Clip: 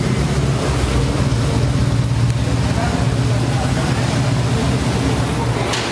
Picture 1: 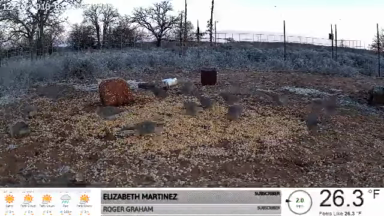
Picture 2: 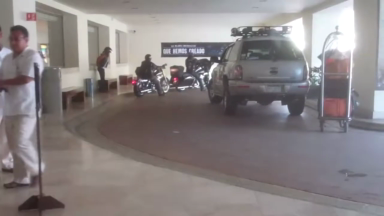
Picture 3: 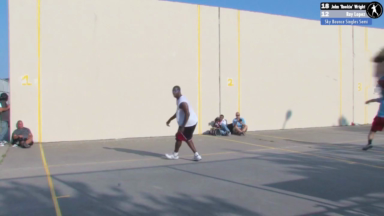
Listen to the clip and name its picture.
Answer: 2